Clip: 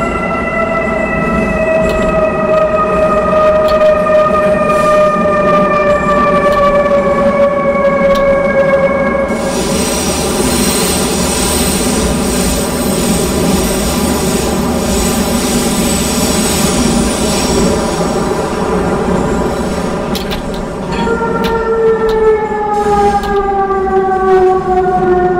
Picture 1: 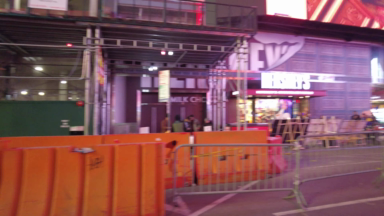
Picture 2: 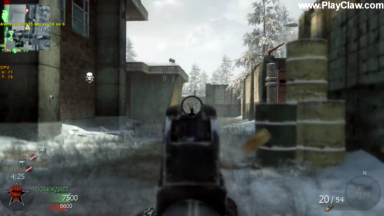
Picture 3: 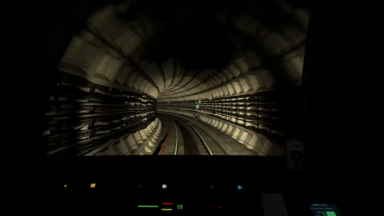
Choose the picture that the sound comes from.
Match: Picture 3